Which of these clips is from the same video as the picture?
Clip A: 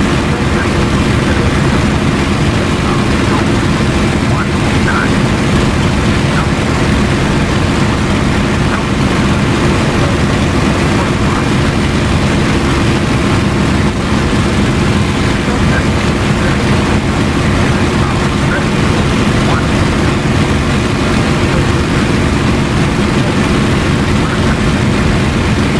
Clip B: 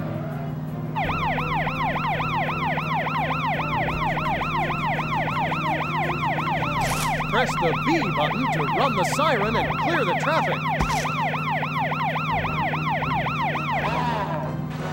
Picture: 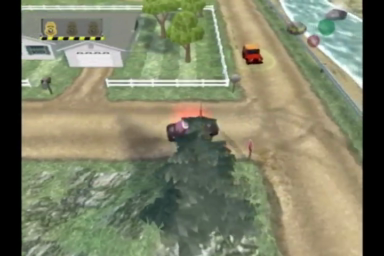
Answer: B